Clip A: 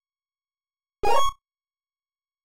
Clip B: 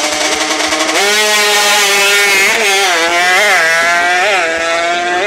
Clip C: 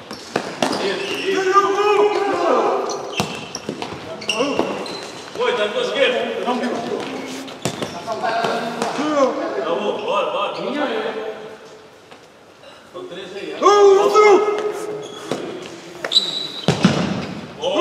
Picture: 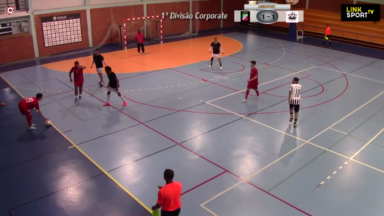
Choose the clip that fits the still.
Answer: C